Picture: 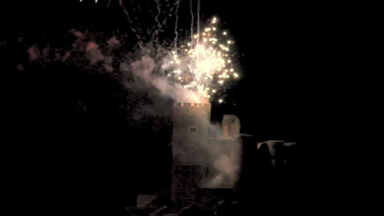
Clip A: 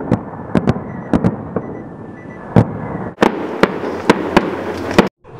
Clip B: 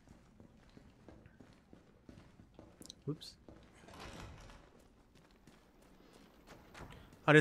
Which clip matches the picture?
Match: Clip A